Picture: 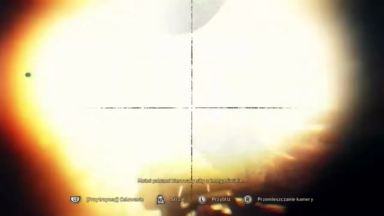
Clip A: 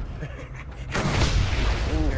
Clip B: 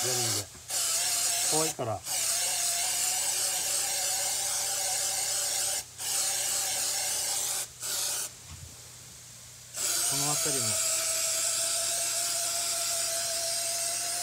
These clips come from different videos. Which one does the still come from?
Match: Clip A